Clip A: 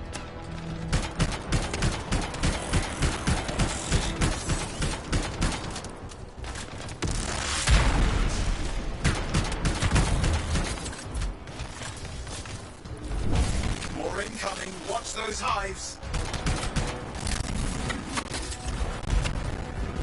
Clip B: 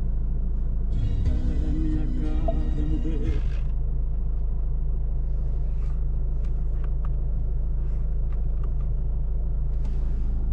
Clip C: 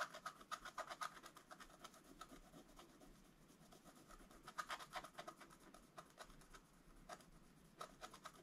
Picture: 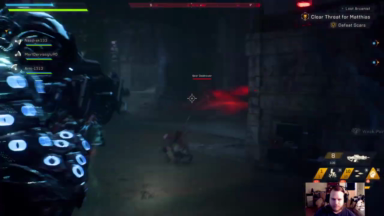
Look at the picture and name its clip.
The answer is A